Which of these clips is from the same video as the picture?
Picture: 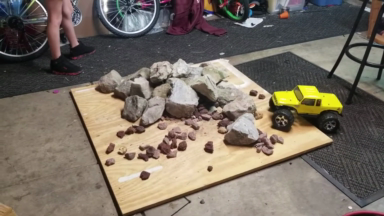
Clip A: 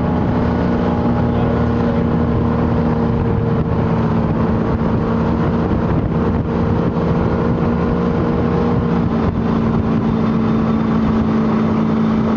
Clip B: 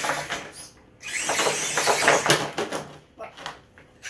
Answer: B